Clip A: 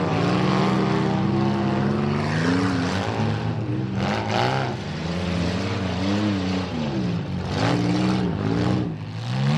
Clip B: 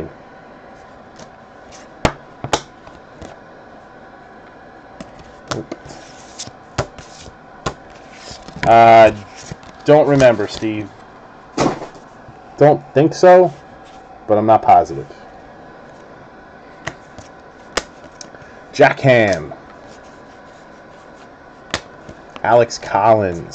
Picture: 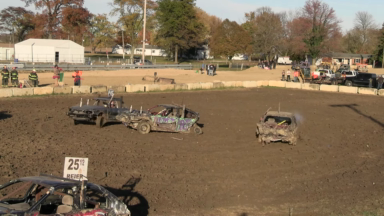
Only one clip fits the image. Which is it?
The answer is A